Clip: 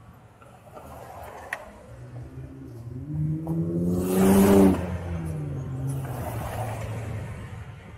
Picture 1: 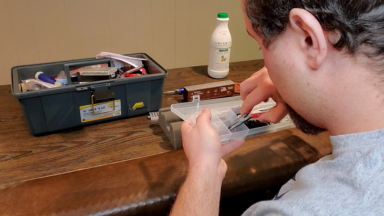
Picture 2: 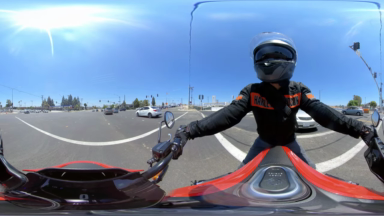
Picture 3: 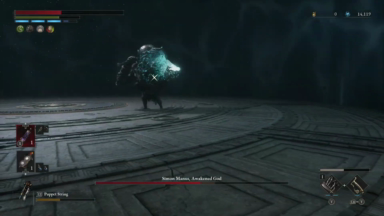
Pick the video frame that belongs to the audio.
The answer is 2